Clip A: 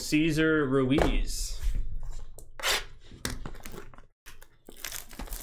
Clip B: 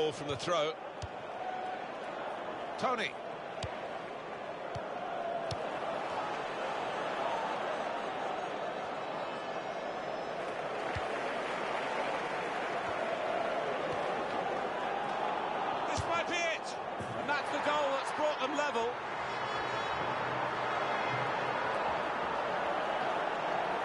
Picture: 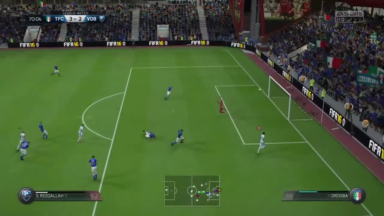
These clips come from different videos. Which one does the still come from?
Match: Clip B